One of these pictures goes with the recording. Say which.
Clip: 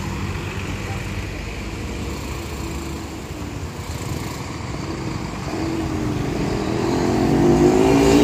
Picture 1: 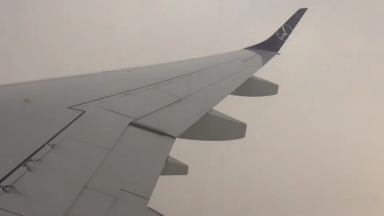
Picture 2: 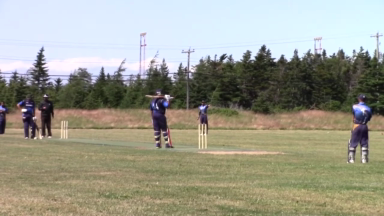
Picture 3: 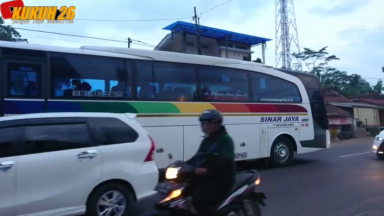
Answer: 3